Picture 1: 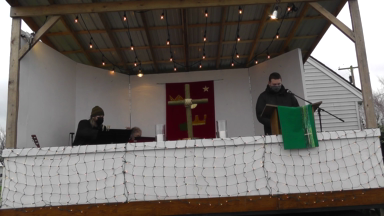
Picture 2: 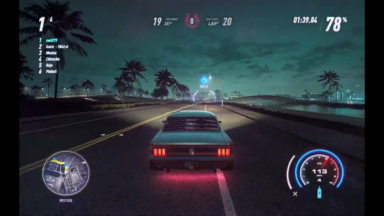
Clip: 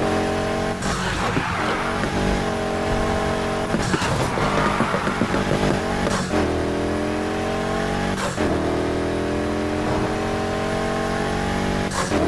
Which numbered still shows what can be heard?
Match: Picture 2